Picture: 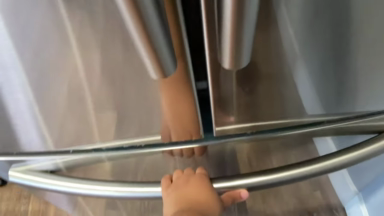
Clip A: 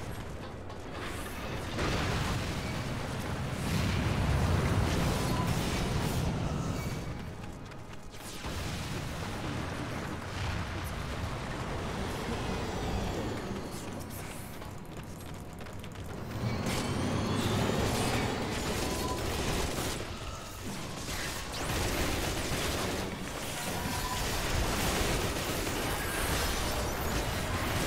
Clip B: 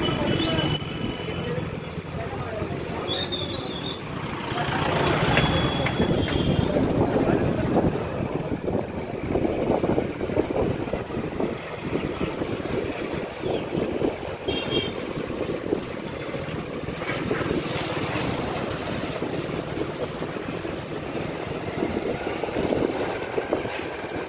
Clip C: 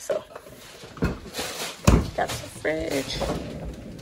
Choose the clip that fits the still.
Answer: C